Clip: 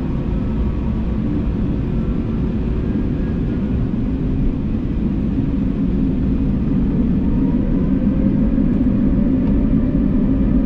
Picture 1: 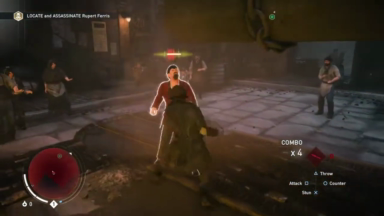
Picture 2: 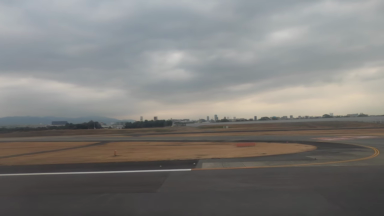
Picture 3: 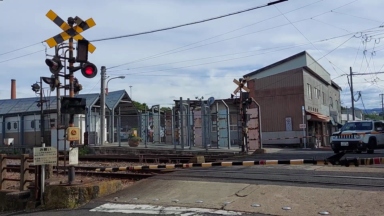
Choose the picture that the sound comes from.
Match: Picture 2